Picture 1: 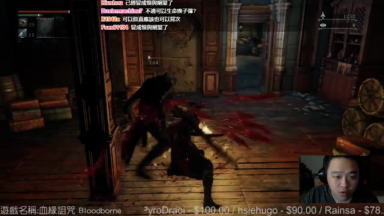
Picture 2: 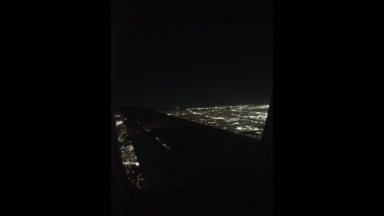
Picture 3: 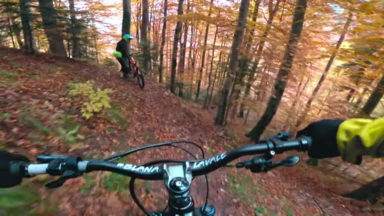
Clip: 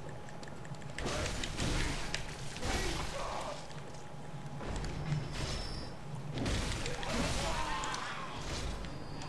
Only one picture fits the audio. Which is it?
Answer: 1